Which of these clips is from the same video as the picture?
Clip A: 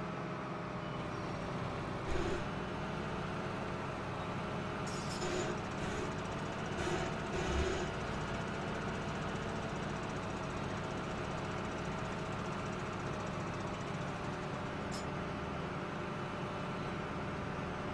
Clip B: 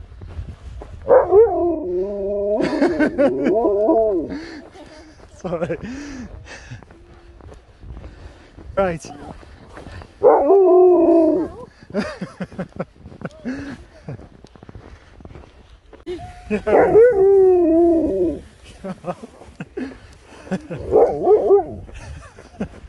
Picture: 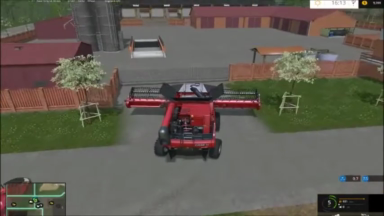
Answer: A